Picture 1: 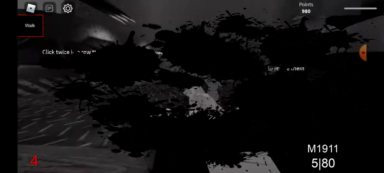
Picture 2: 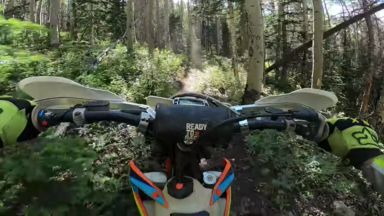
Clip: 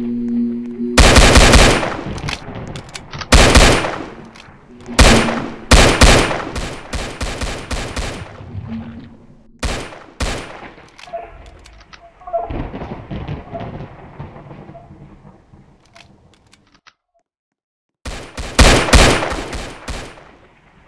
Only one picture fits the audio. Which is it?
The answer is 1